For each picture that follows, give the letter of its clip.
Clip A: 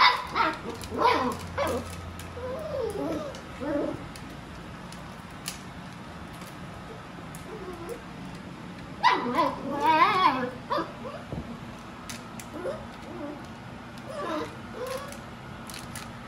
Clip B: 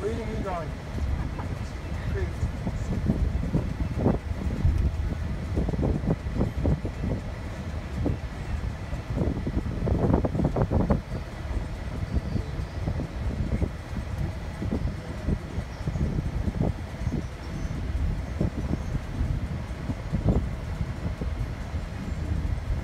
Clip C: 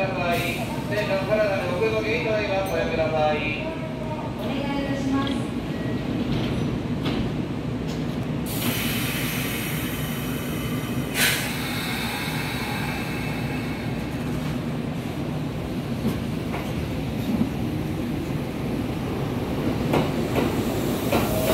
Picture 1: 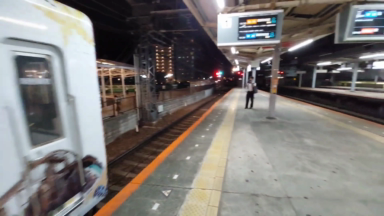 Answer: C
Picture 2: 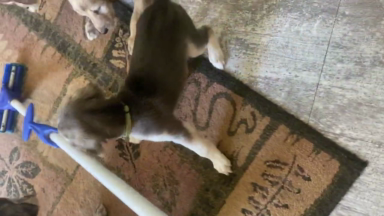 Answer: A